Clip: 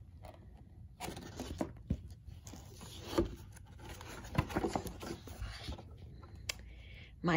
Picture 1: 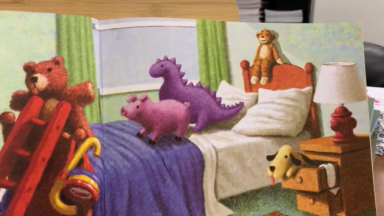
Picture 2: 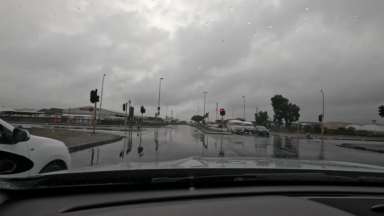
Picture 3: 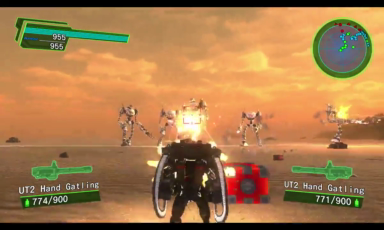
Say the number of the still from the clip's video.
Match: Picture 1